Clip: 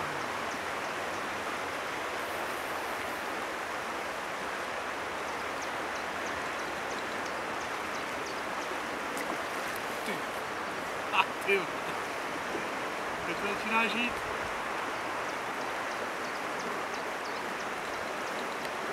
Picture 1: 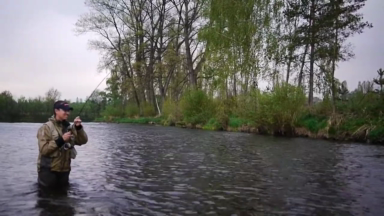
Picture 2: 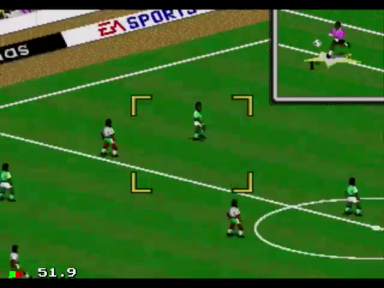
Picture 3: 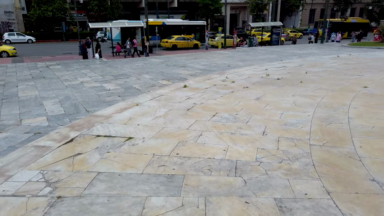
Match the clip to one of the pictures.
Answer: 1